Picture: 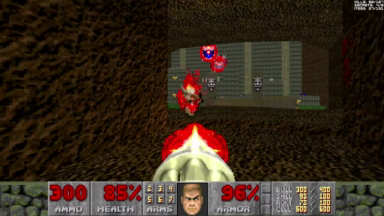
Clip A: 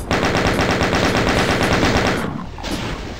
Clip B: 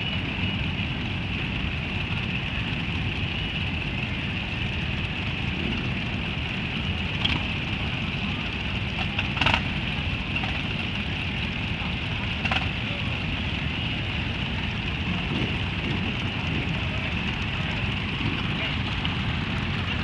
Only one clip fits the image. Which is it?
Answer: A